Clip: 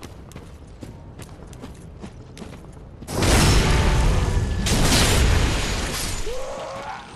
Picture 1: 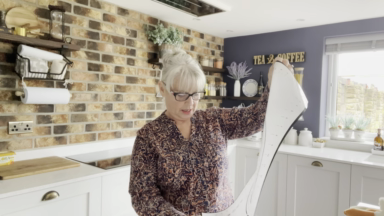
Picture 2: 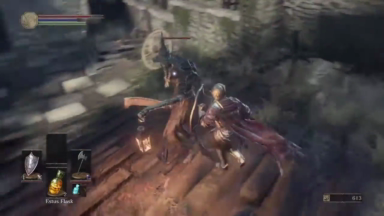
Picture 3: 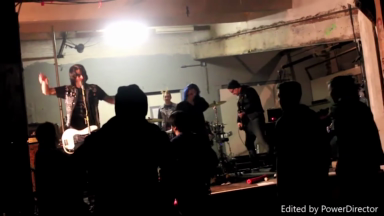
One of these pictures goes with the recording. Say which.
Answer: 2